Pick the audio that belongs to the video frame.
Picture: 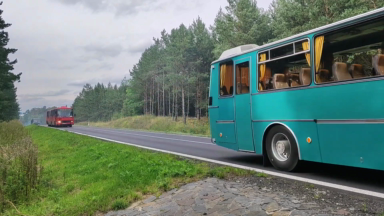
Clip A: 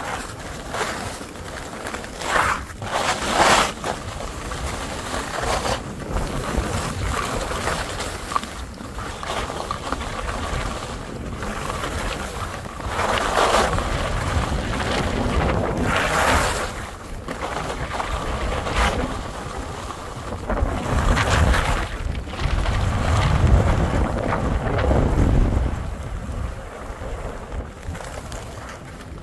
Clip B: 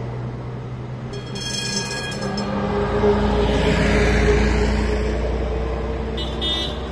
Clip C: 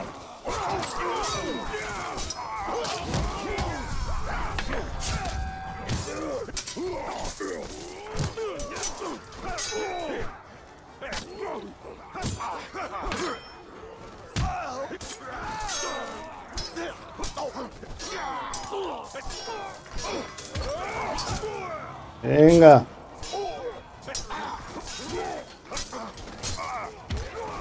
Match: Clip B